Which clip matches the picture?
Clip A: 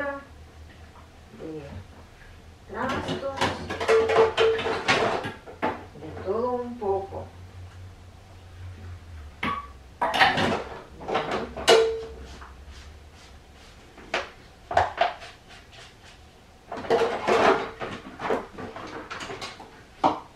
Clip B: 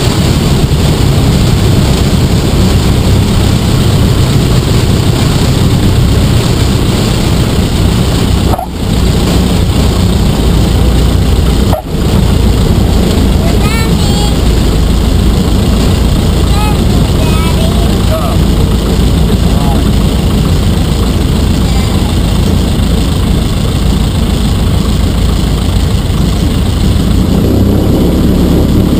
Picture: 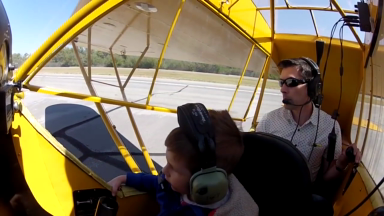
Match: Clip B